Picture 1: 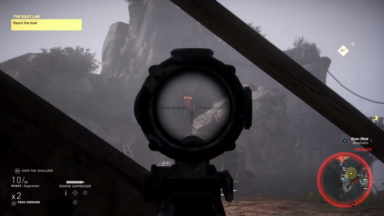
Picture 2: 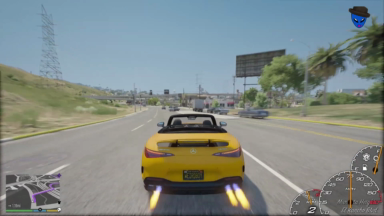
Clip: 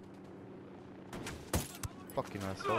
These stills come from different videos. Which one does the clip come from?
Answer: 1